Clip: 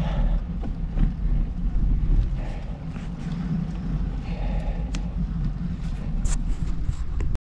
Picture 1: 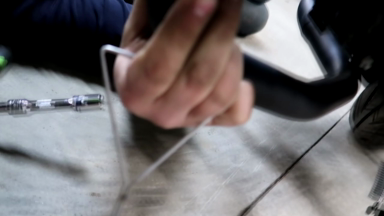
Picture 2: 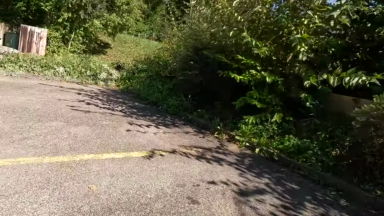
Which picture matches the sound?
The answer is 2